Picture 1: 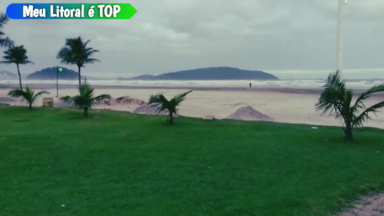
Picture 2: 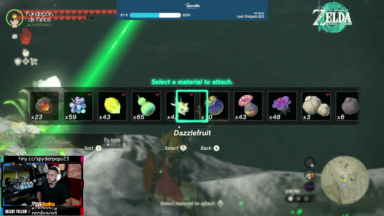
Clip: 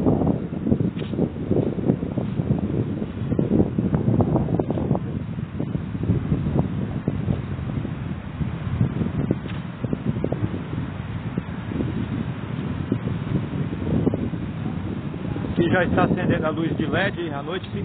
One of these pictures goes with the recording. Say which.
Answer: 1